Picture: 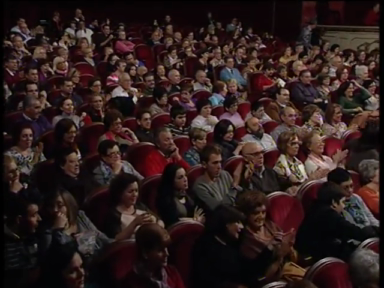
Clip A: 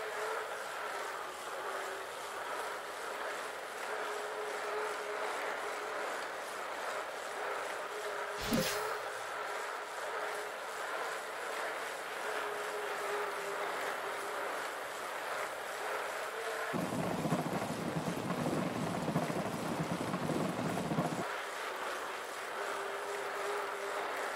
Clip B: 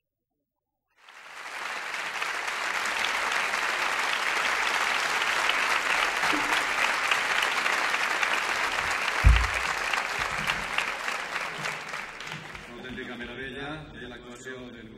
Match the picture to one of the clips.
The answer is B